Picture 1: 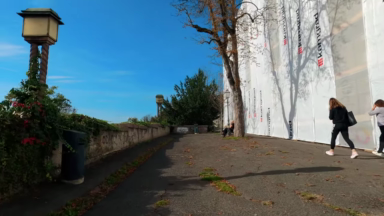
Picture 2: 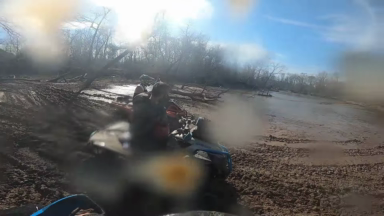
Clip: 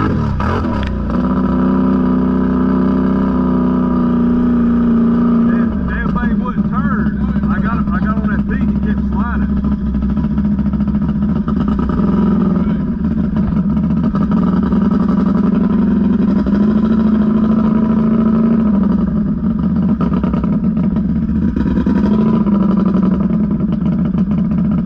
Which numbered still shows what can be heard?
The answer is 2